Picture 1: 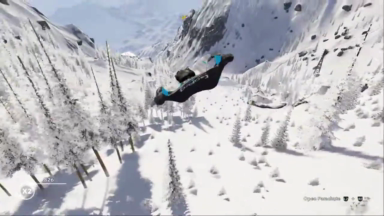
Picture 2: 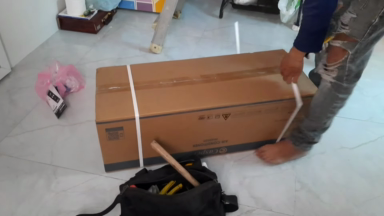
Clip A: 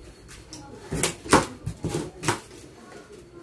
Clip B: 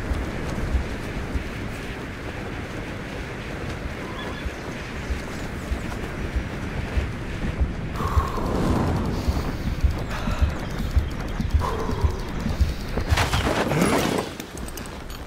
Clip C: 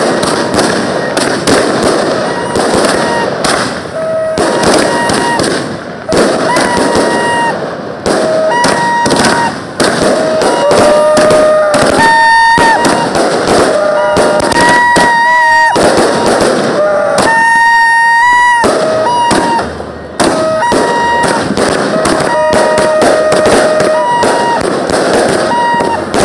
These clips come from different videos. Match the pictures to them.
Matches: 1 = B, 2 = A